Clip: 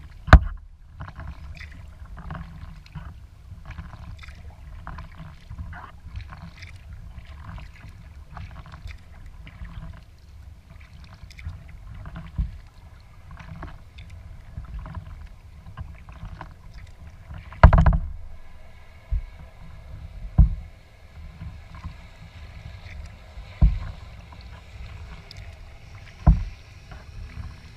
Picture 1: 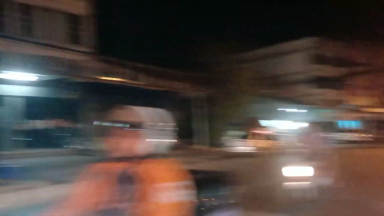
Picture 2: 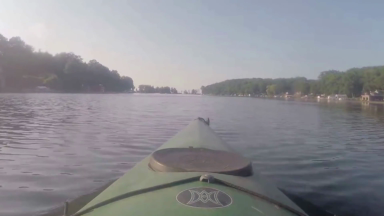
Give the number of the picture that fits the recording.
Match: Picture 2